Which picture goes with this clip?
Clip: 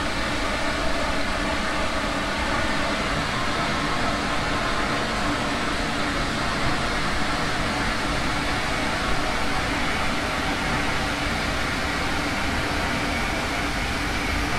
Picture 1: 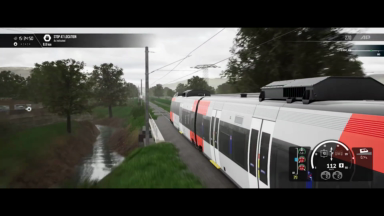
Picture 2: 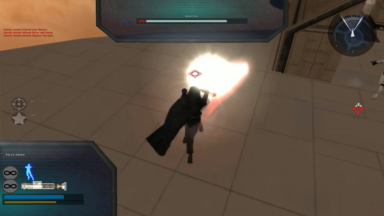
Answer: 1